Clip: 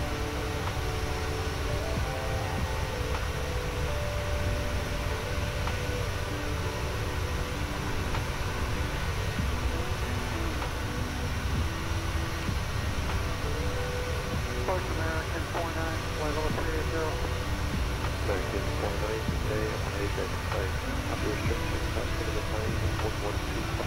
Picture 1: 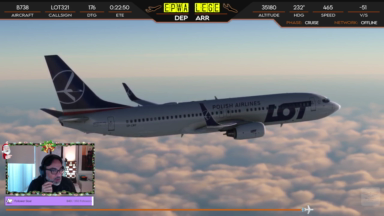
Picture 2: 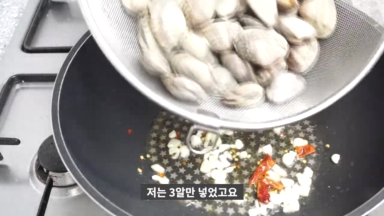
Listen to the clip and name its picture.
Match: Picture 1